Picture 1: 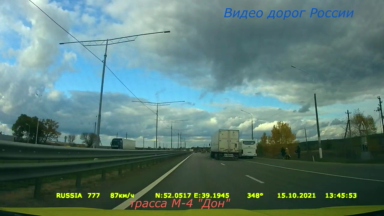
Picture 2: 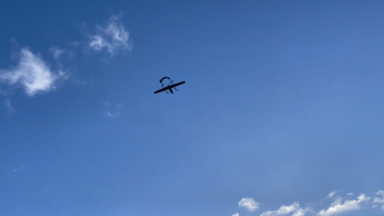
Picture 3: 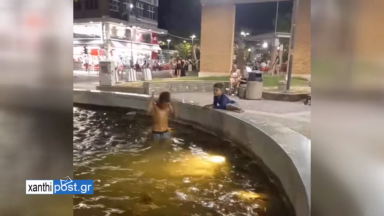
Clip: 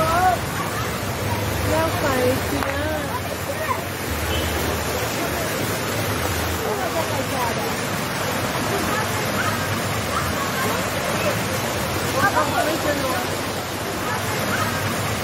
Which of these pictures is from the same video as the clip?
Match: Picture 3